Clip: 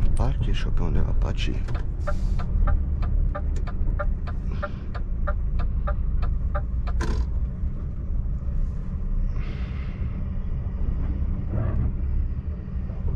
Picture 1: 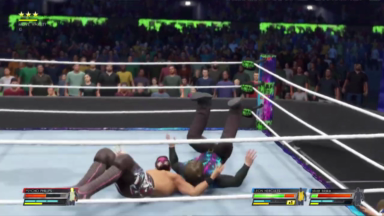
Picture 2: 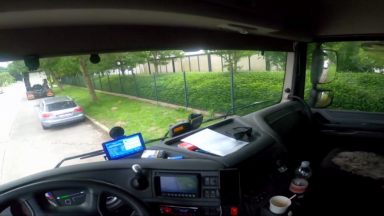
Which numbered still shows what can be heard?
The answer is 2